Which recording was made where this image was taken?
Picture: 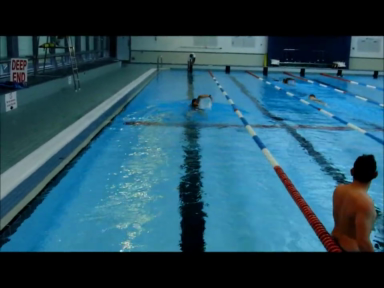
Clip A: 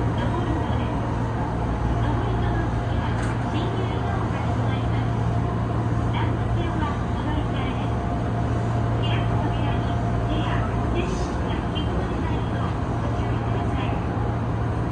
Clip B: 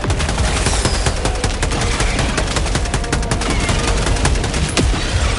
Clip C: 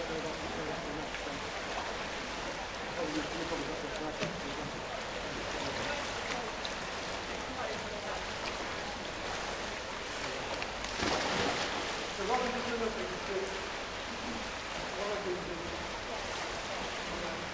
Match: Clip C